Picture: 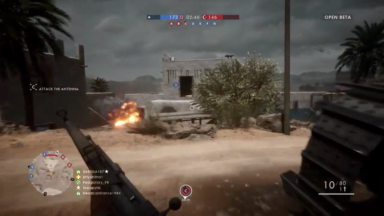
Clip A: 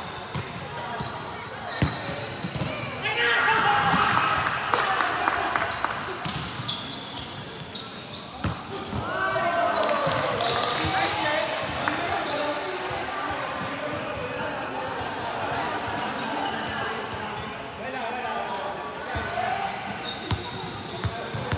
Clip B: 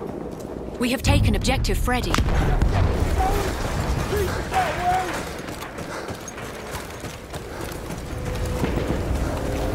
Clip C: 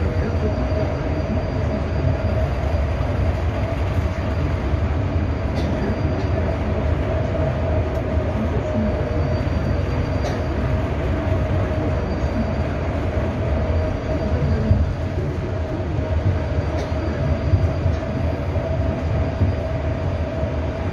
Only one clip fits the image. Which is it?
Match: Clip B